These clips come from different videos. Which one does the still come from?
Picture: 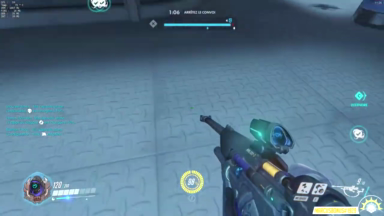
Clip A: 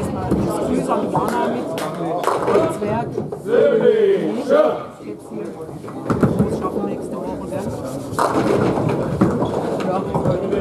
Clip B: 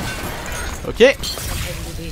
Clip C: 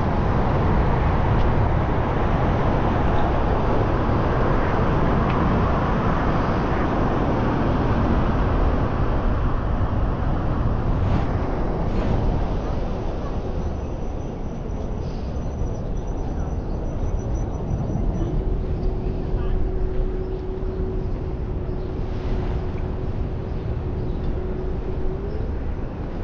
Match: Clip B